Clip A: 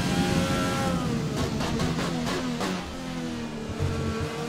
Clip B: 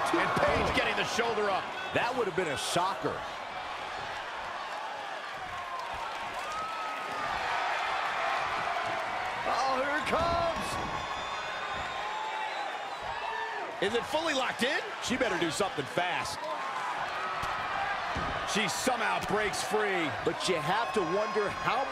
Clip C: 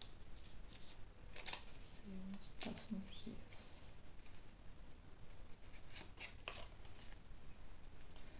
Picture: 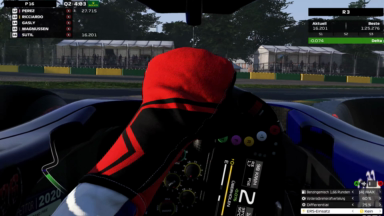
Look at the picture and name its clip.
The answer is A